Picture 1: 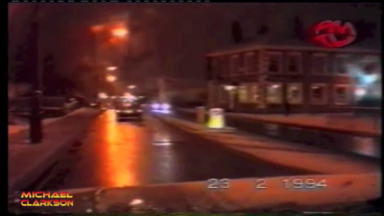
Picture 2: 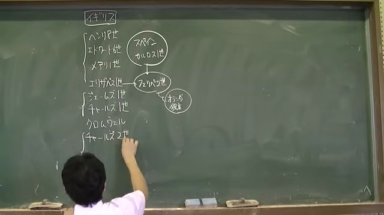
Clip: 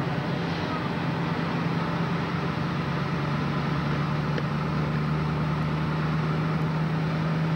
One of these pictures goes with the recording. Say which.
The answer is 1